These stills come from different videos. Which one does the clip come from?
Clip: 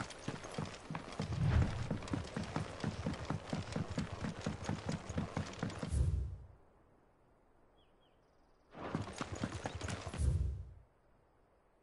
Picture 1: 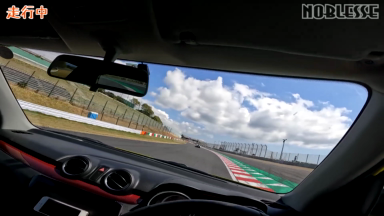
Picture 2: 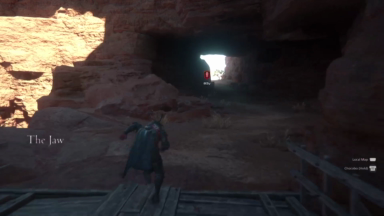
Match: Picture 2